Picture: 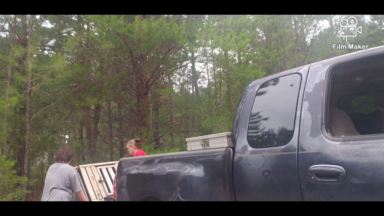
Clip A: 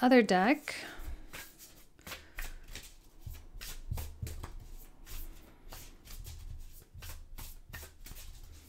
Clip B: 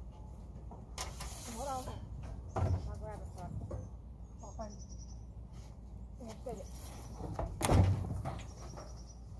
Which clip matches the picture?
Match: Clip B